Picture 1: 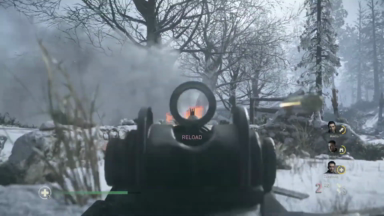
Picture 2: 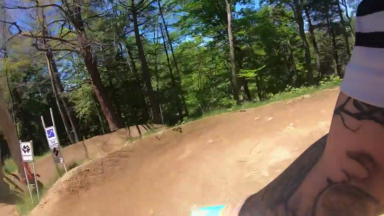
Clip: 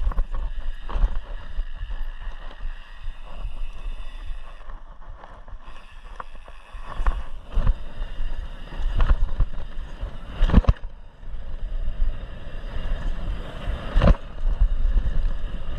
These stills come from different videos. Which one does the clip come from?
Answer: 2